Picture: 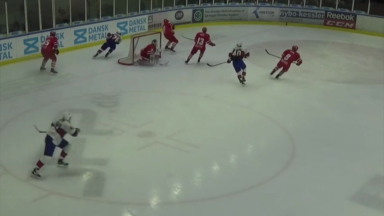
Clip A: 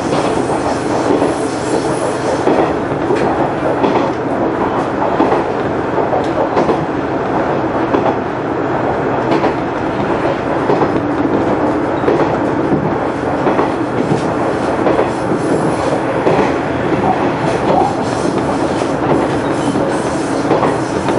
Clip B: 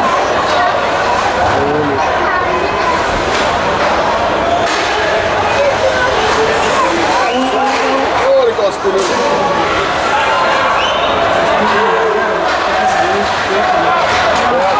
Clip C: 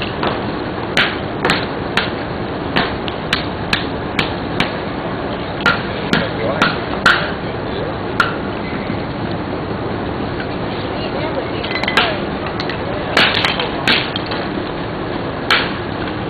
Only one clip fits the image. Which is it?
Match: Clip B